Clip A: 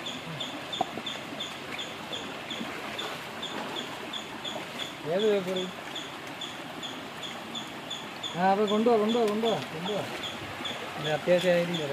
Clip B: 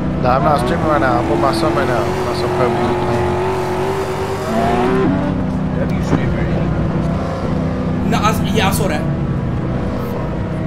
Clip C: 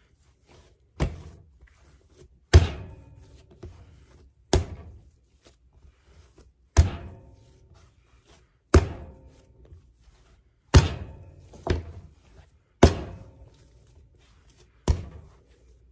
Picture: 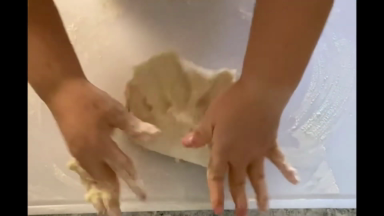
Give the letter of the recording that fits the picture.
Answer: C